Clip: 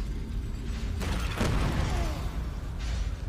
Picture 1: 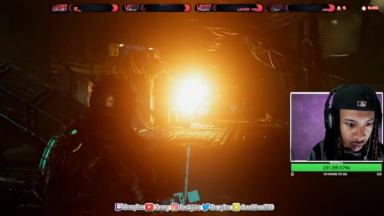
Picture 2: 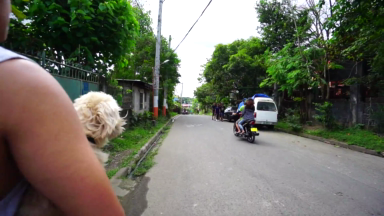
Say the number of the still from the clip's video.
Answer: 1